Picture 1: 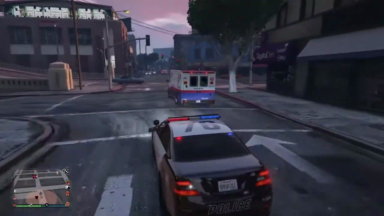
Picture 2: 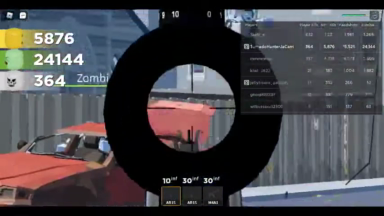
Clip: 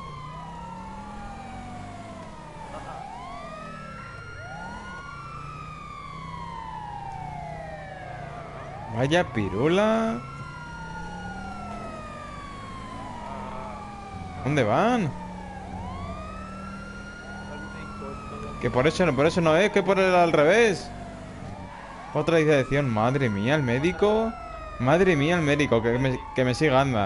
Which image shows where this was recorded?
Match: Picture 1